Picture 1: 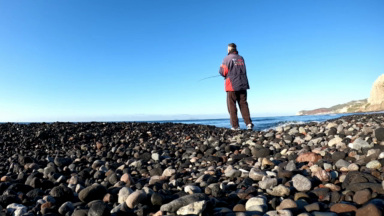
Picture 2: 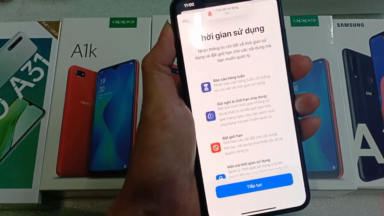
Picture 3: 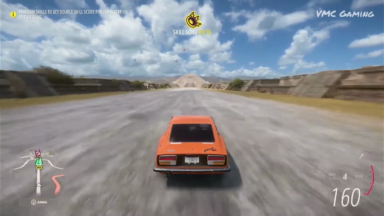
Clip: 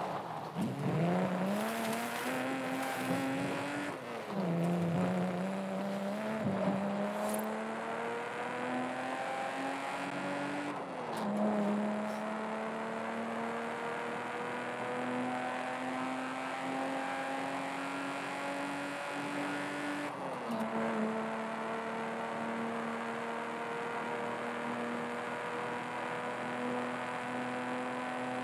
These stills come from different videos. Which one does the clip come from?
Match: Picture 3